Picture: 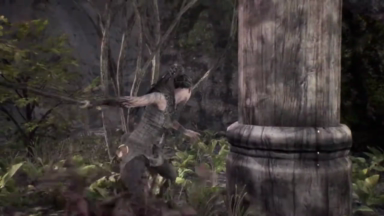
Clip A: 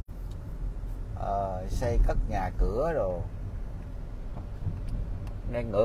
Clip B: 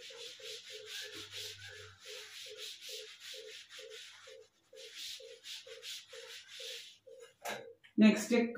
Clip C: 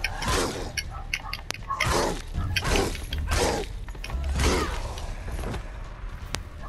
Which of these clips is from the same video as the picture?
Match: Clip C